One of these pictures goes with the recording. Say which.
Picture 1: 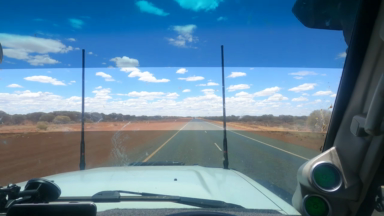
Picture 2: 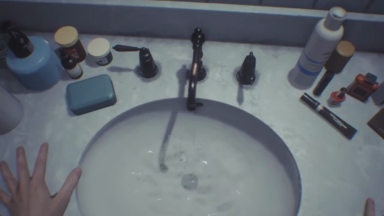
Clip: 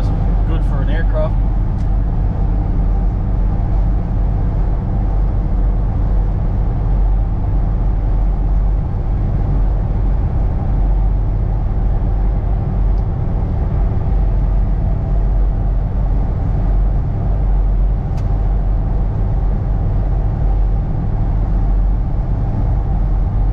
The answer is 1